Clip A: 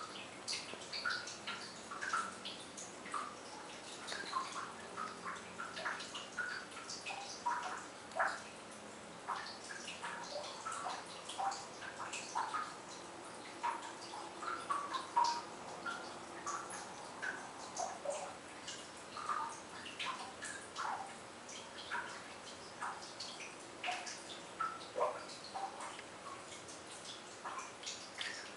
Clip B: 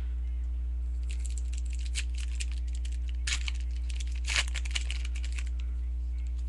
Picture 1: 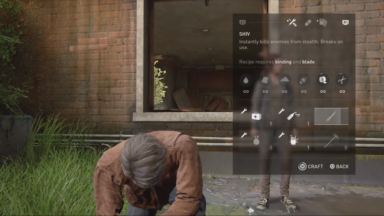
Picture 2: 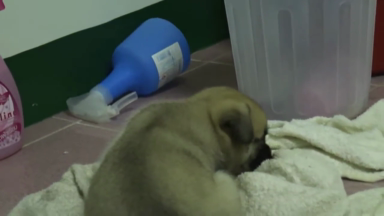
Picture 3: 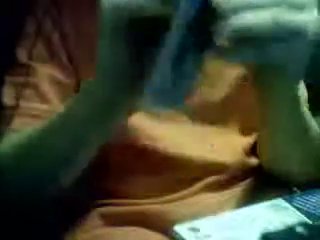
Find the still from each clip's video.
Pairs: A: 2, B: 3